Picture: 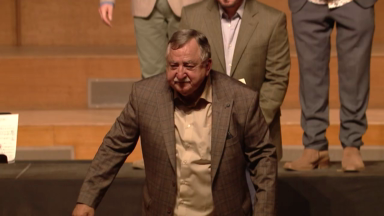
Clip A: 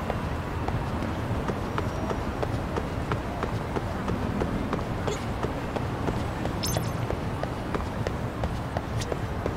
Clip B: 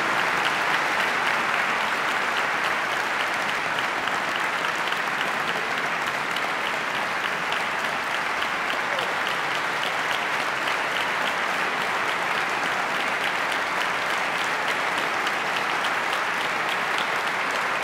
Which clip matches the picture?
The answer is B